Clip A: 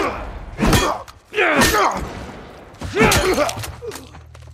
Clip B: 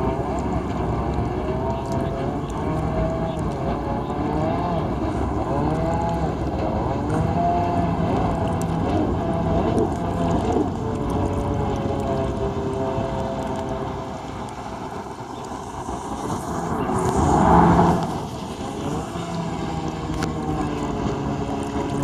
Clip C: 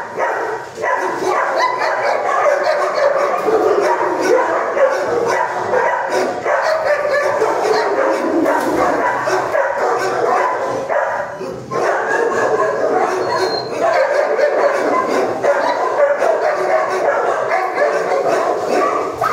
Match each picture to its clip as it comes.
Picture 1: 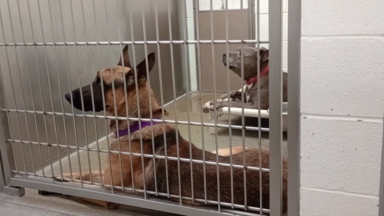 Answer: C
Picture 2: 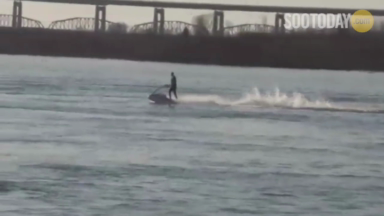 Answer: B